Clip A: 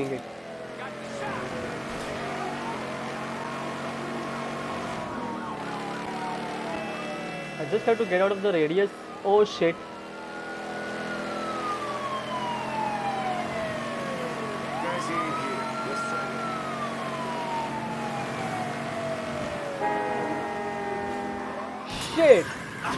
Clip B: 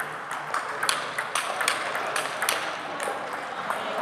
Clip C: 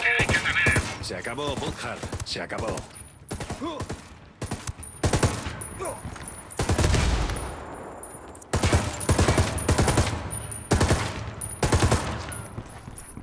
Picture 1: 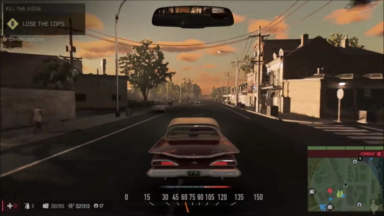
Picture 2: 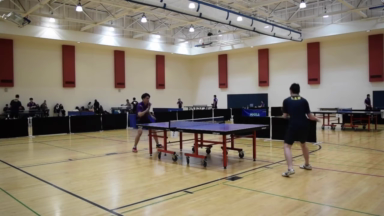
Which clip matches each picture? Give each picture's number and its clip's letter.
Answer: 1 A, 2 B